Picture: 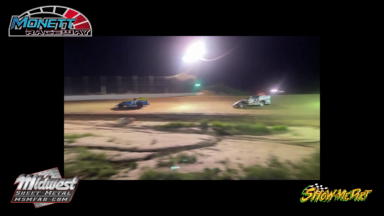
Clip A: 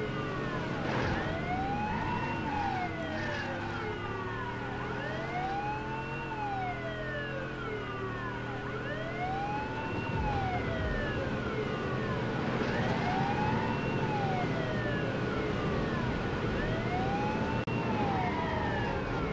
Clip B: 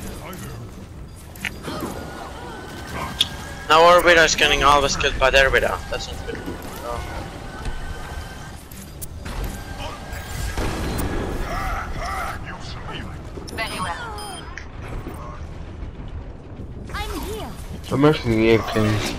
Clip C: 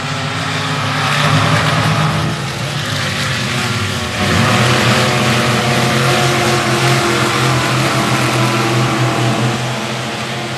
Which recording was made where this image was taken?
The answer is C